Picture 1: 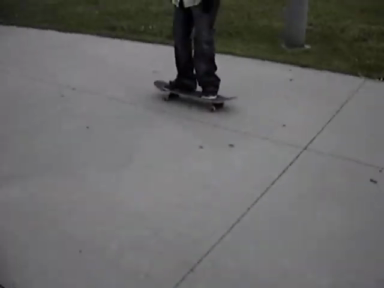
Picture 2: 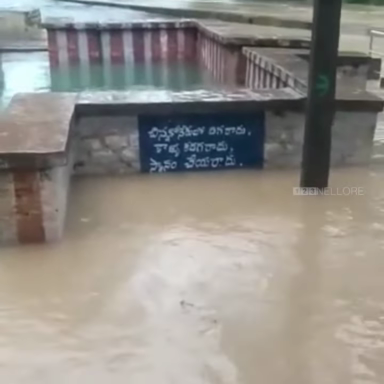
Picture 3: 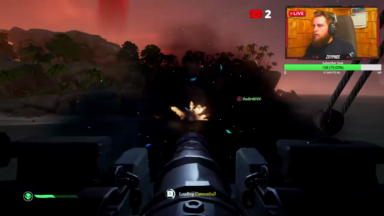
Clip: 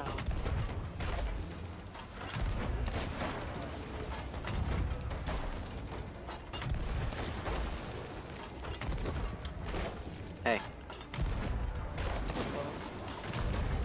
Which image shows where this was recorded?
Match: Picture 3